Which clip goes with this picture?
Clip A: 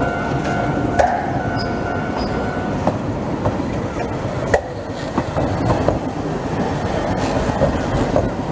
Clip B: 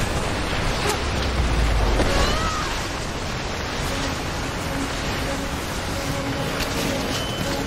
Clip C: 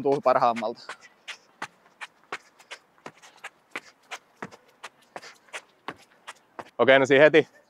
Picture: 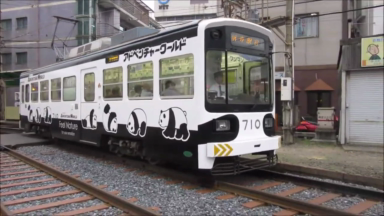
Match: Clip A